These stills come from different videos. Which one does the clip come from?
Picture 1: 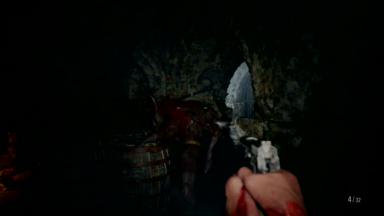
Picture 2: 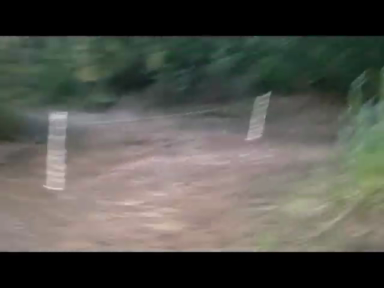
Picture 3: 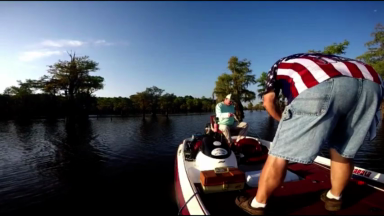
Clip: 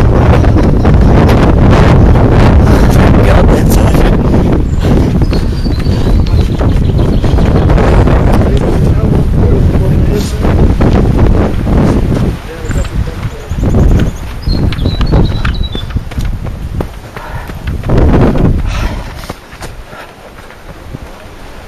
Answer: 2